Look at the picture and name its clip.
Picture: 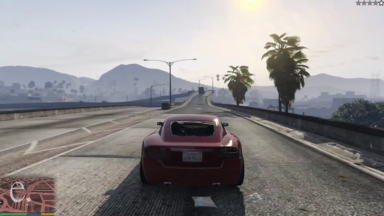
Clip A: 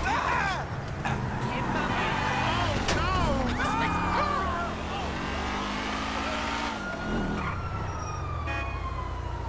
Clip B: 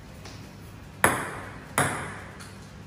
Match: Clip A